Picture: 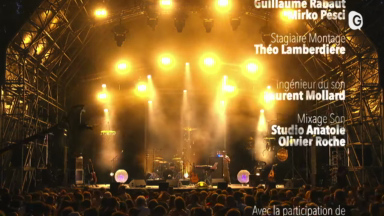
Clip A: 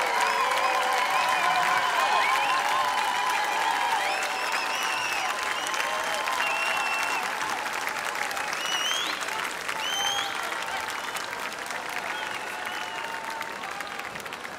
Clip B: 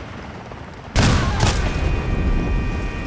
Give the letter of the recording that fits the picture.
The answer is A